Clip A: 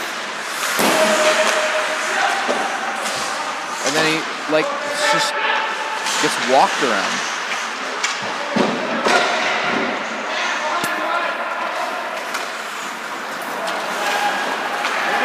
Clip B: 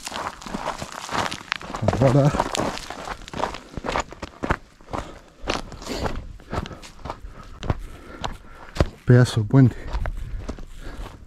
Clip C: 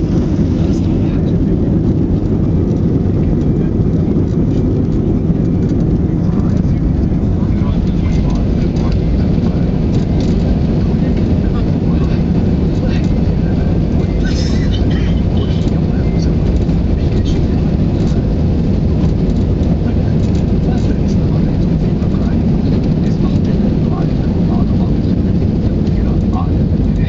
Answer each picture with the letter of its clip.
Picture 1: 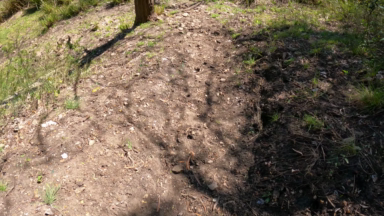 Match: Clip B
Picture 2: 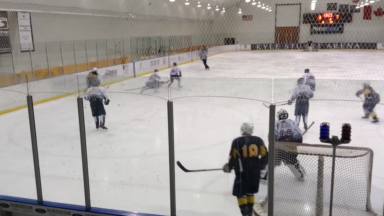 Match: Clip A